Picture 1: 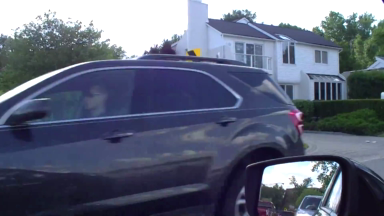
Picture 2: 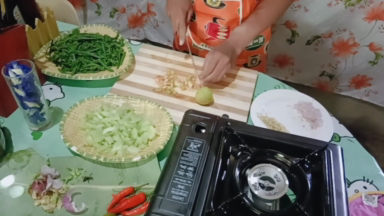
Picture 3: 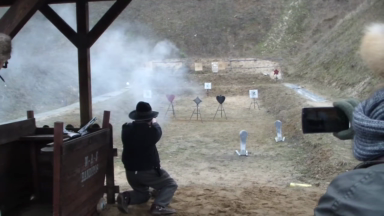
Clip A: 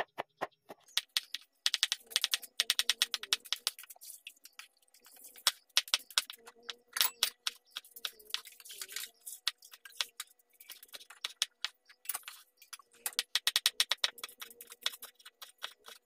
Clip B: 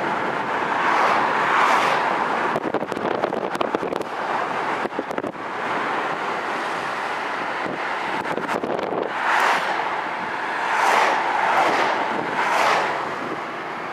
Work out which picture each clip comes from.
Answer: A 2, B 1